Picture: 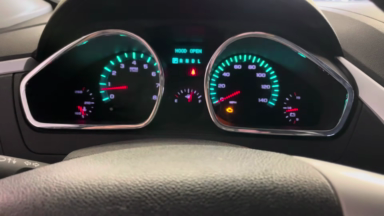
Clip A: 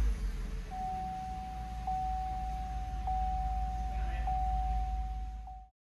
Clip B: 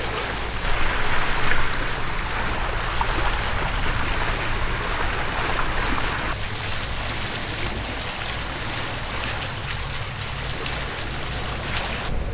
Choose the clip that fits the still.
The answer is A